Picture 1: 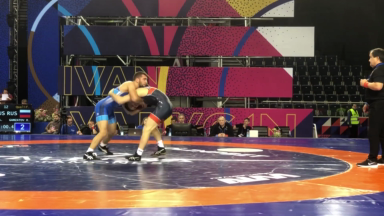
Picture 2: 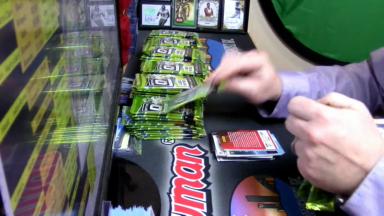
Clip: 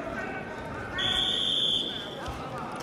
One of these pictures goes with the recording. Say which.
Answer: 1